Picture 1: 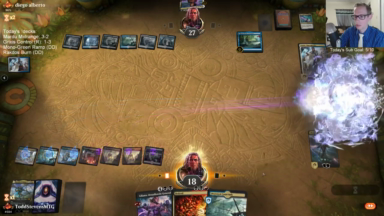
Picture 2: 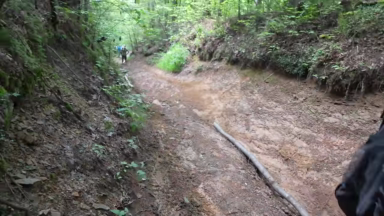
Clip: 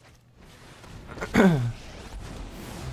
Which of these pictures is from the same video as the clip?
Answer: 1